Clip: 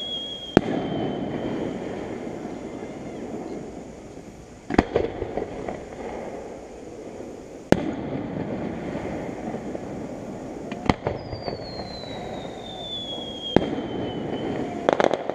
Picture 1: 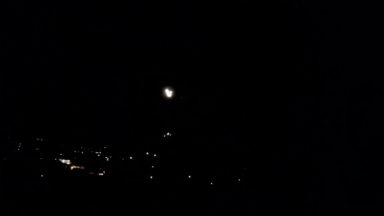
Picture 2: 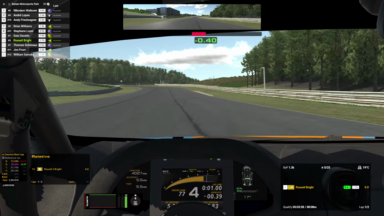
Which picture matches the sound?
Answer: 1